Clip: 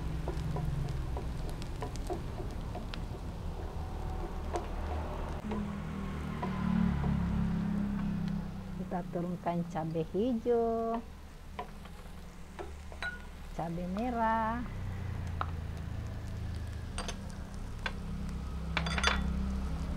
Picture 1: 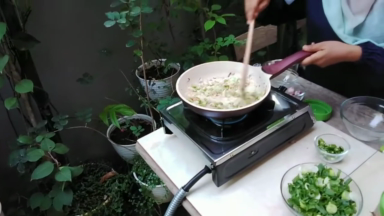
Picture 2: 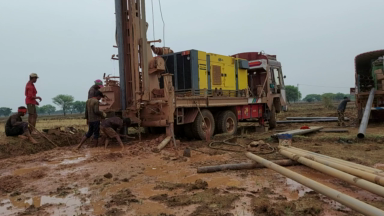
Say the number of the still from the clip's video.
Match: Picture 1